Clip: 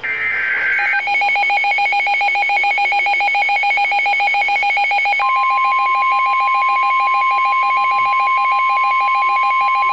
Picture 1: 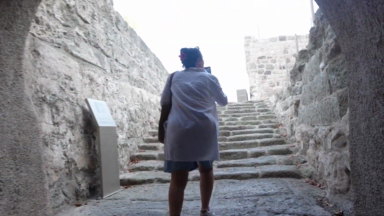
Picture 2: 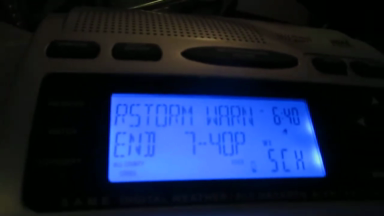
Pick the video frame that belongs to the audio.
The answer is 2